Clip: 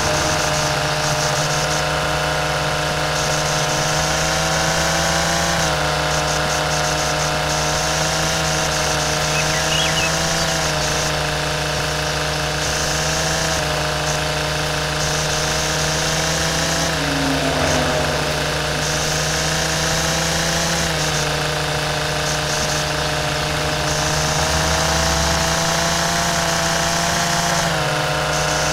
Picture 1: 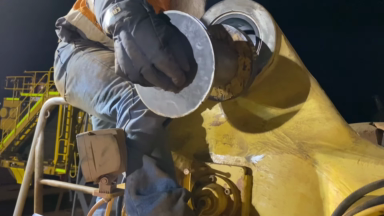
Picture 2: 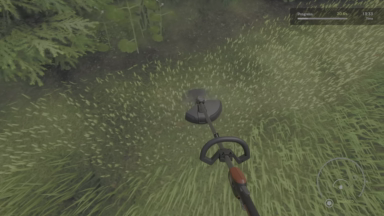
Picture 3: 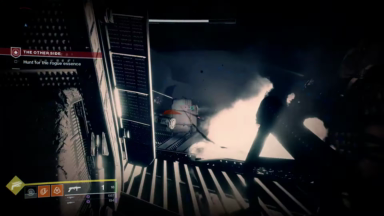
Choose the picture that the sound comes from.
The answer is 2